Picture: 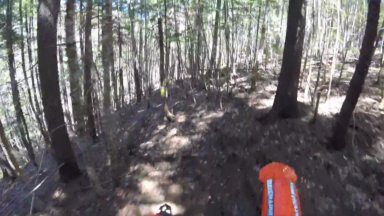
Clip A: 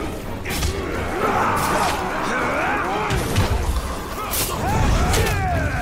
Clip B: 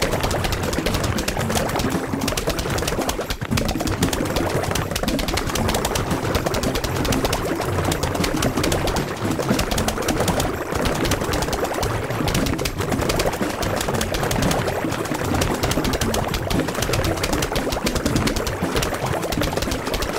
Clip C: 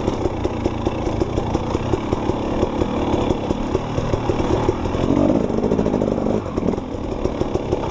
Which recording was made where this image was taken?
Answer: C